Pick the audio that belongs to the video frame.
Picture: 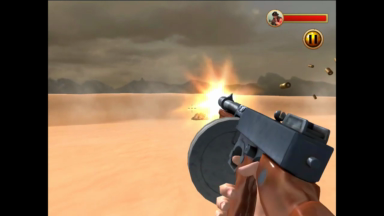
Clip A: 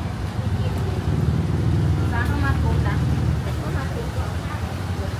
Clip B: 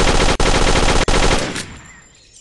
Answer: B